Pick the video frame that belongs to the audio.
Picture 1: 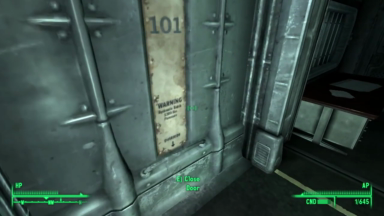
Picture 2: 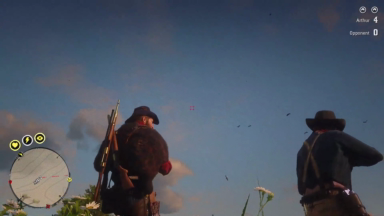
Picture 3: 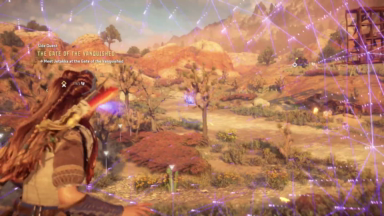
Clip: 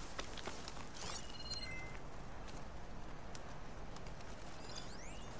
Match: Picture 3